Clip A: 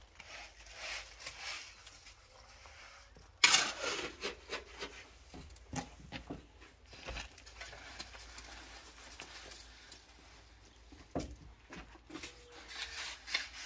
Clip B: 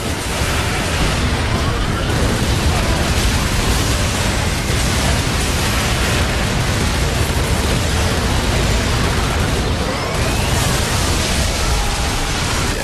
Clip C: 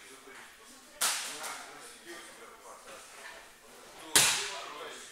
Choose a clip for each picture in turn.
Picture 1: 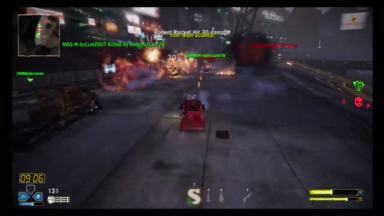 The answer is B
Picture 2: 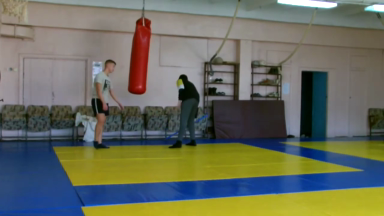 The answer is C